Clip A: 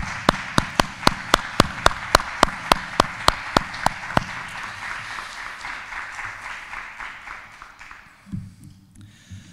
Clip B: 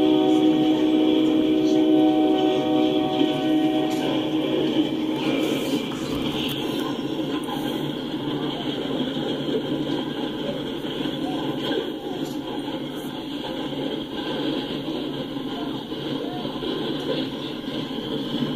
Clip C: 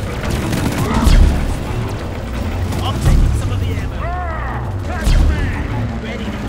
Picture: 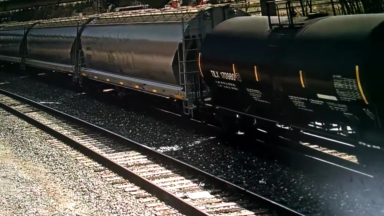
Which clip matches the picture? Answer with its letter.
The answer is B